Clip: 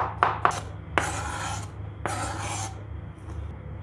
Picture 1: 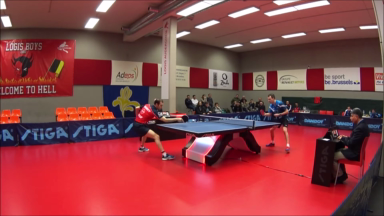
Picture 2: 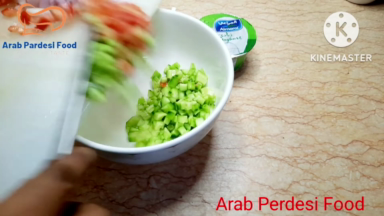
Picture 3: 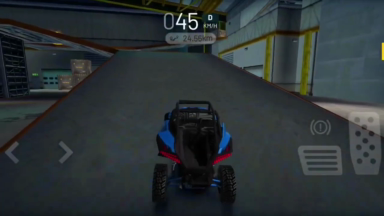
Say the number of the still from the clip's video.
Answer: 2